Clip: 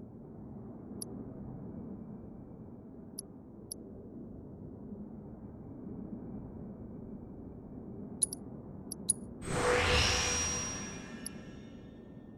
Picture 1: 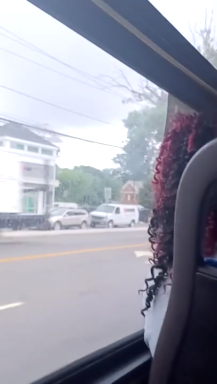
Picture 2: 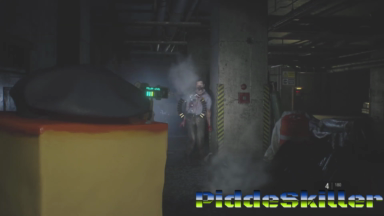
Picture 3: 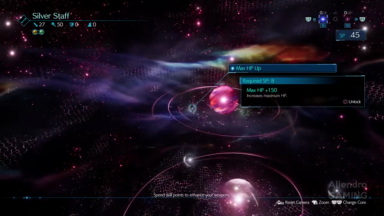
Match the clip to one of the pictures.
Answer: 3